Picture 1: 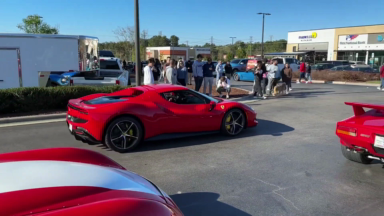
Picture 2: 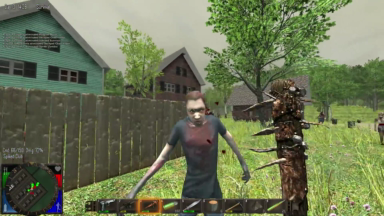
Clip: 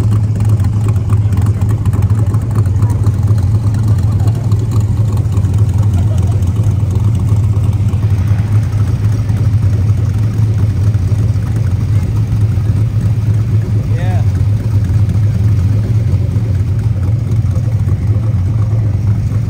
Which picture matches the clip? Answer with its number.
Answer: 1